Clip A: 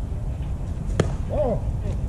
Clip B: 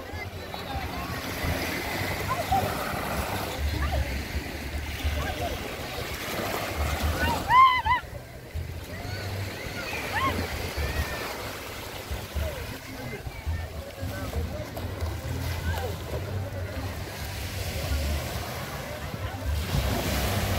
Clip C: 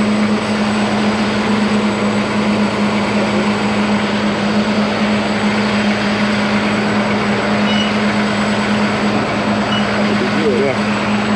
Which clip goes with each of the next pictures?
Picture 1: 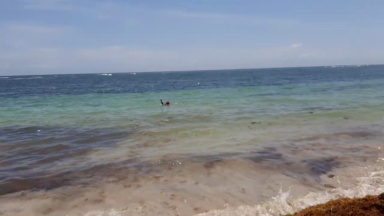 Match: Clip B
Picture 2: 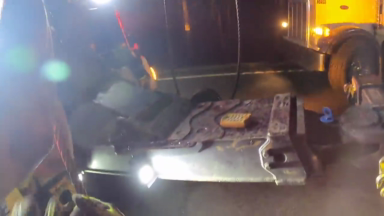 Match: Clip C